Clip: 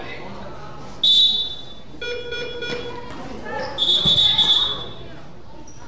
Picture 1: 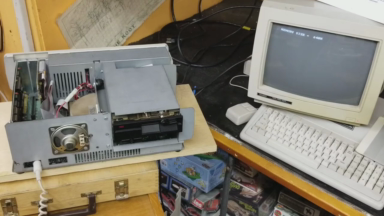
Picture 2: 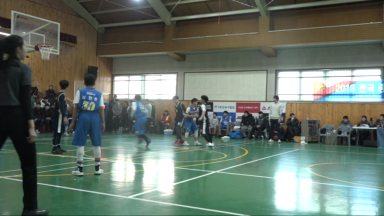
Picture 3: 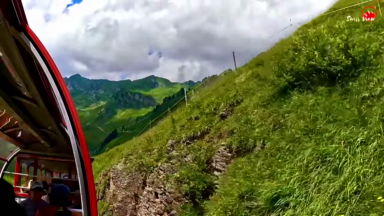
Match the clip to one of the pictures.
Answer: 2